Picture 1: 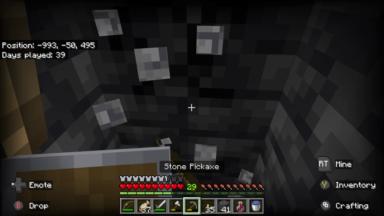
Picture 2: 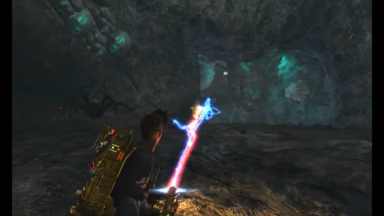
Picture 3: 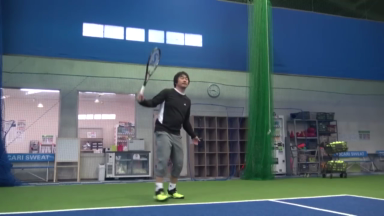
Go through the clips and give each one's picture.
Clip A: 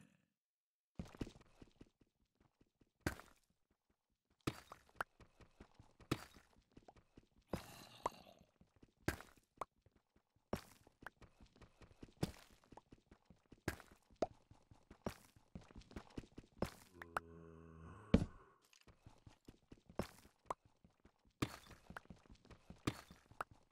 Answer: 1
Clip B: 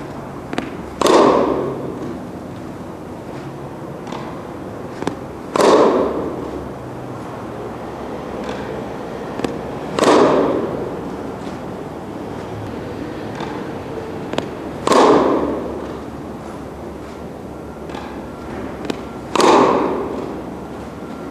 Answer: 3